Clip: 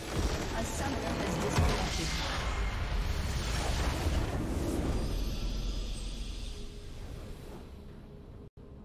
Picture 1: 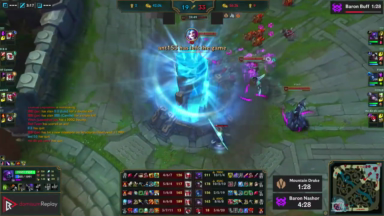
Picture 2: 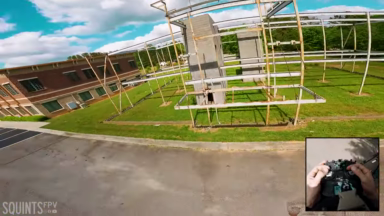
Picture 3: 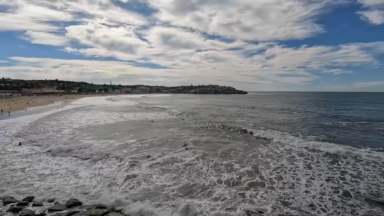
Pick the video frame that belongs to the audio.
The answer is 1